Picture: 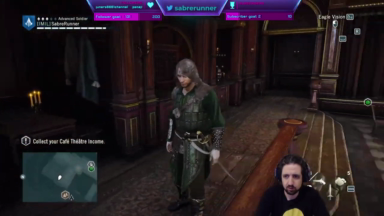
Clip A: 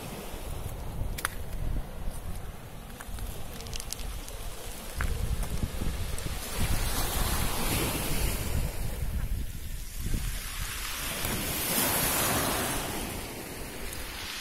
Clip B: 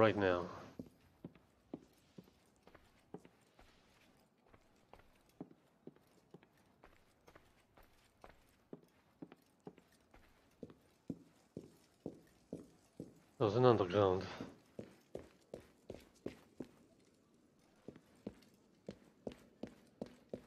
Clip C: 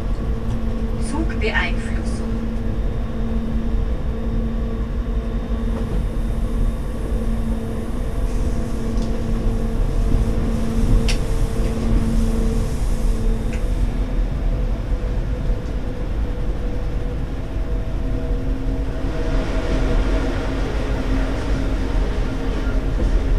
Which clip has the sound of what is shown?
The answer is B